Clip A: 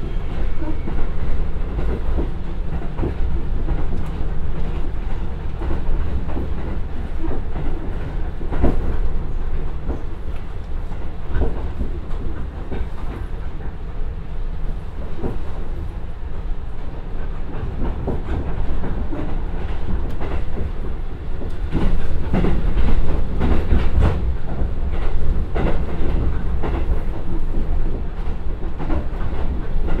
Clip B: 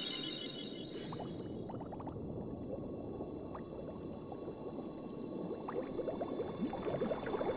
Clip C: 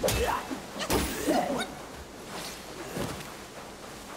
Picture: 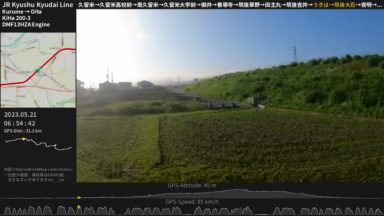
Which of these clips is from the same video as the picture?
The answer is A